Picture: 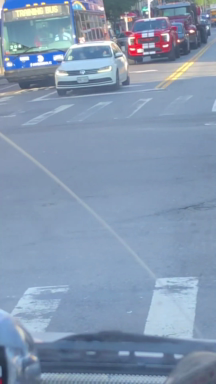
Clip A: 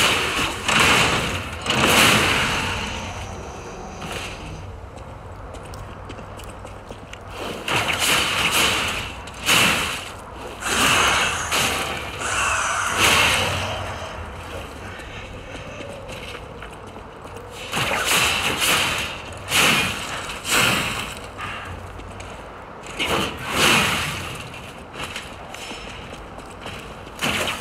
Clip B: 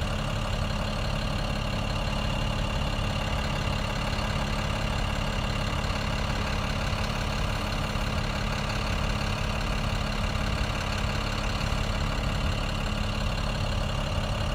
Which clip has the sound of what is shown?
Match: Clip B